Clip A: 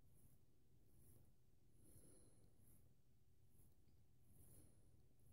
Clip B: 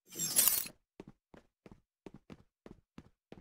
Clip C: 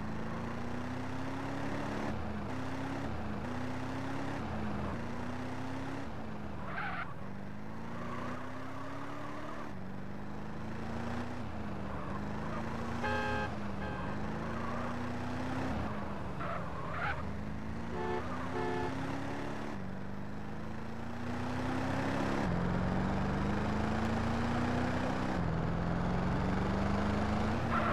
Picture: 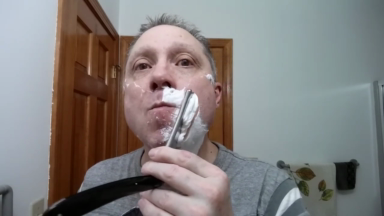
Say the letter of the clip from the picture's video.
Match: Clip A